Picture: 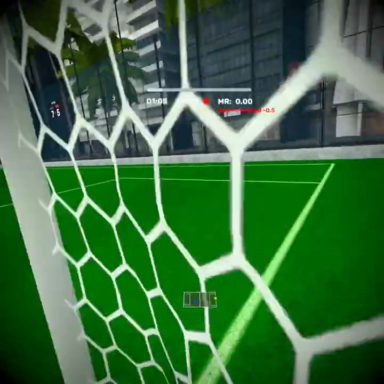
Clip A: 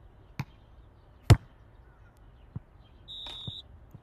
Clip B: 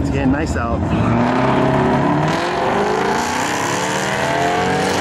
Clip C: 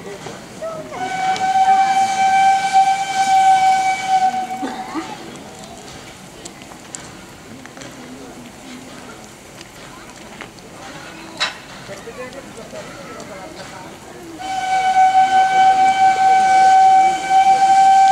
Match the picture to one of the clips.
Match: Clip A